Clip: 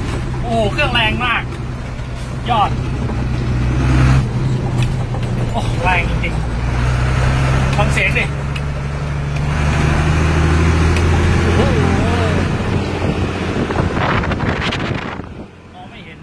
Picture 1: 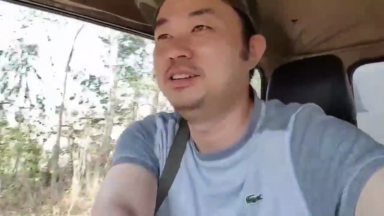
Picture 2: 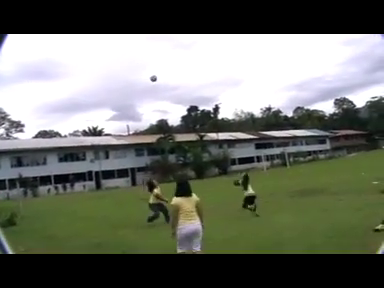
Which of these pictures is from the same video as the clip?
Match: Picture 1